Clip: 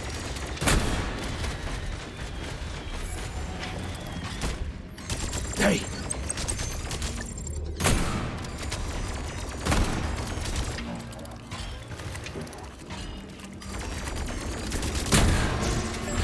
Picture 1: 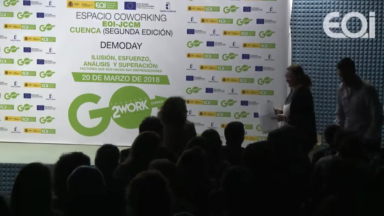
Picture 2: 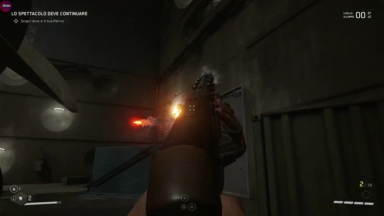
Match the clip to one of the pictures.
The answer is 2